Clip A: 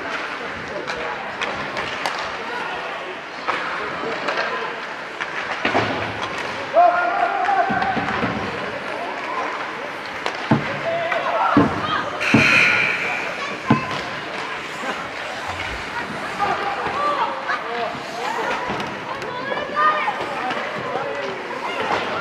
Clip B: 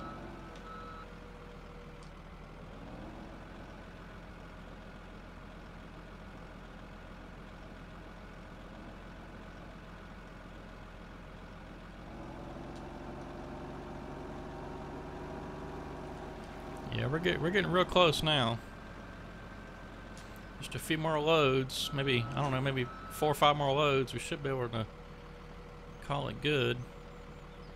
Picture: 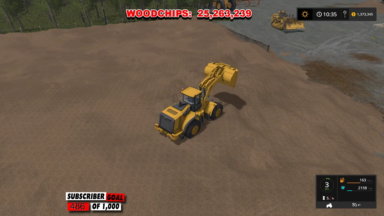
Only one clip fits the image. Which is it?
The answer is B